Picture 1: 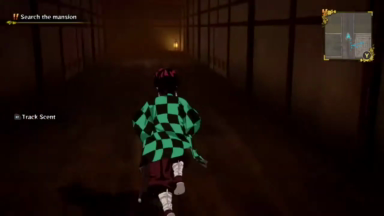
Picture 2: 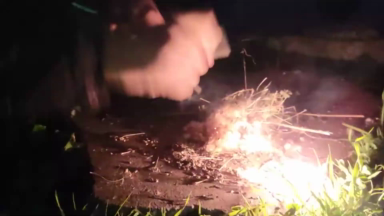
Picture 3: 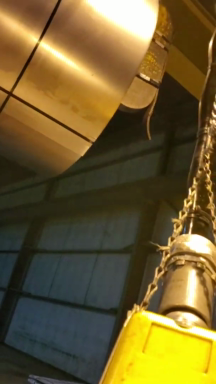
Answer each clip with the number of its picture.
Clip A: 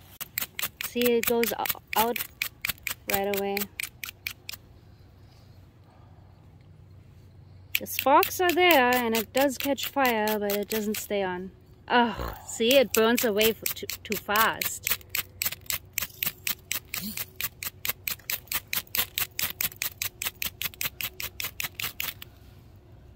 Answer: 2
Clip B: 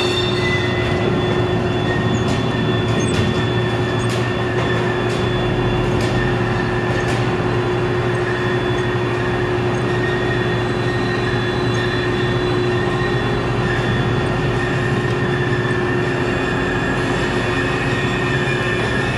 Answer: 3